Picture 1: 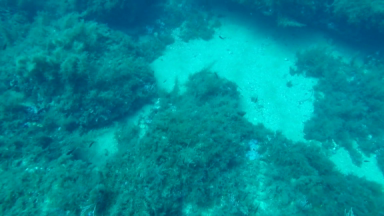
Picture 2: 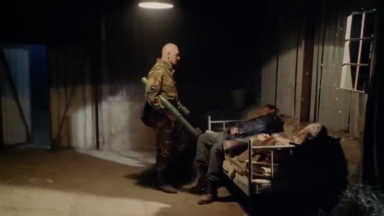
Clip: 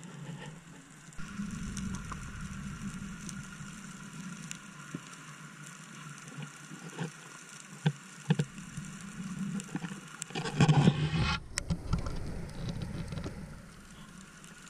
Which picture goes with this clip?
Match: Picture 1